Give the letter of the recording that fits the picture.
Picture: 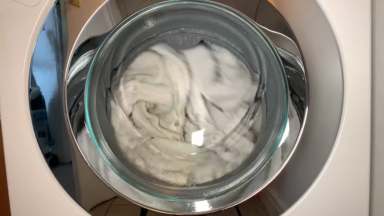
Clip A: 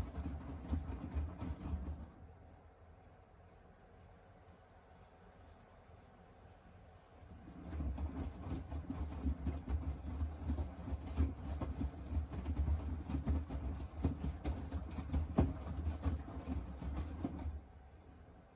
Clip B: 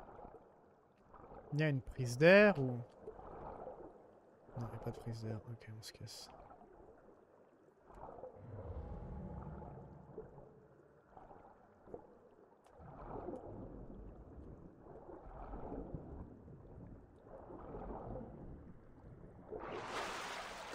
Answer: A